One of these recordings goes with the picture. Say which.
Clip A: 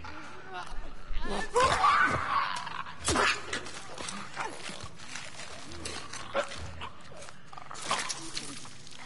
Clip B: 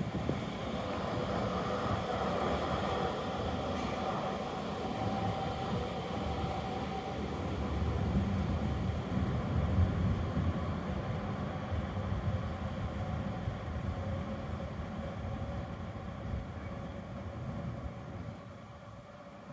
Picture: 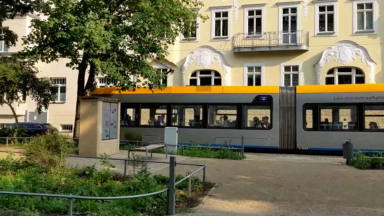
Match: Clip B